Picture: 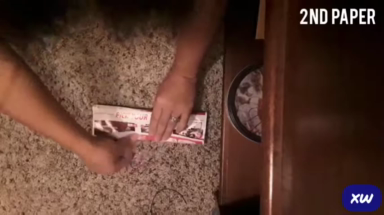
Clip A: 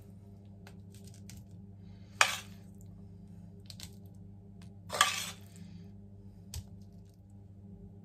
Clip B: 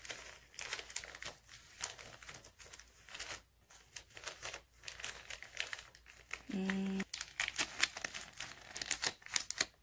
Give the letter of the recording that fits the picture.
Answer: B